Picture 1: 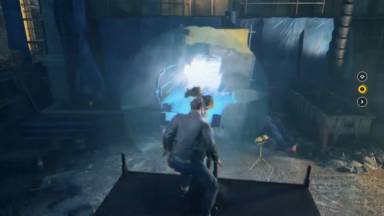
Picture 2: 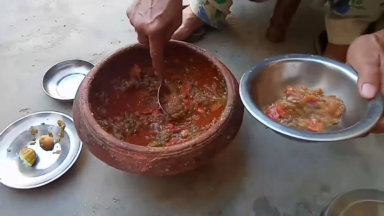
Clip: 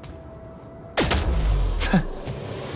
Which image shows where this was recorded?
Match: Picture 1